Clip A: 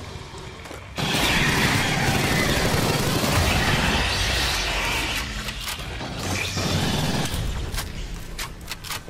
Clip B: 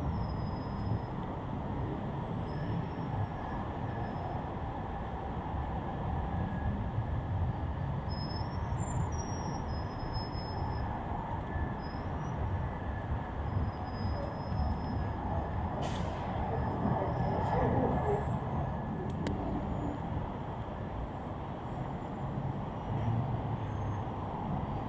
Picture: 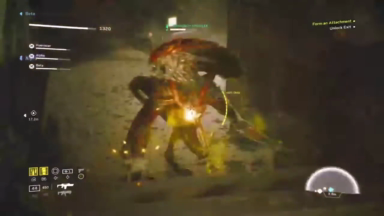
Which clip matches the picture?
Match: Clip A